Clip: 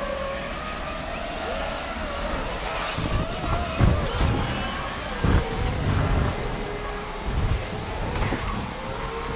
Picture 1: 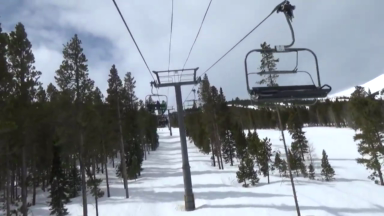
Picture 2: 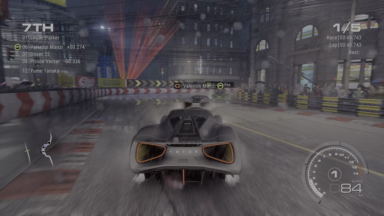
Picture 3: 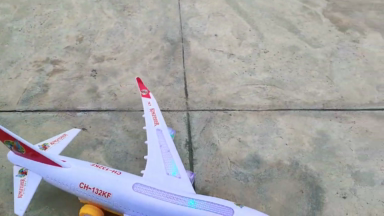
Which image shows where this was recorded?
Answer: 2